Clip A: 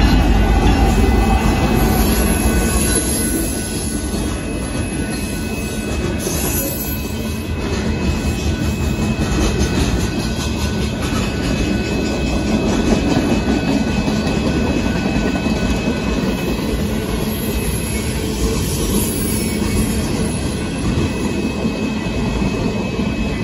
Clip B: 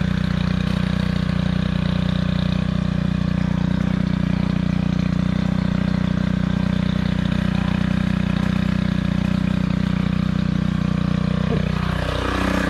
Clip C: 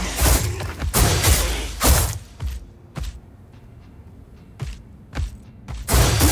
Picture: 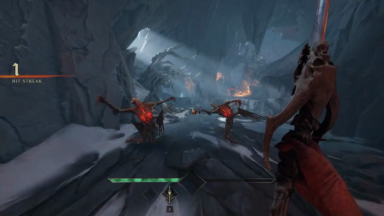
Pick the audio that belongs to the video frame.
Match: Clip C